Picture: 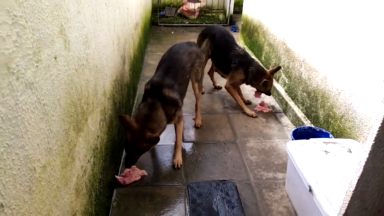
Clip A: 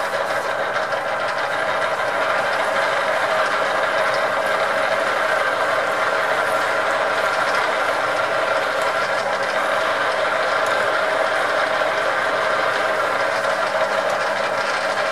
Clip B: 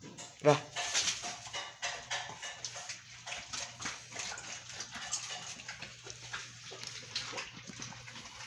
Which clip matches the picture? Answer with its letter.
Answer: B